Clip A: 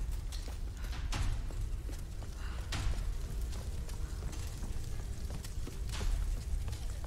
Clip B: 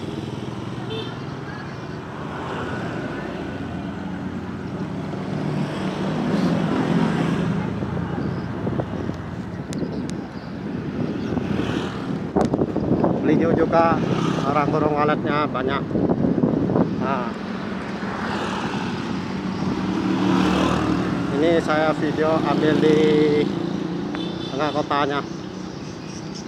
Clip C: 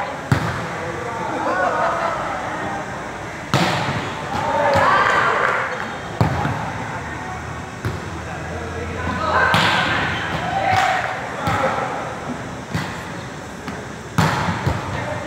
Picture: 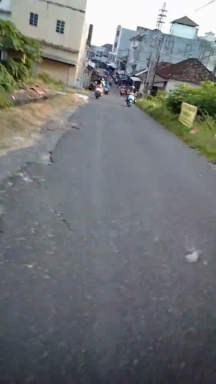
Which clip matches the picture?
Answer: B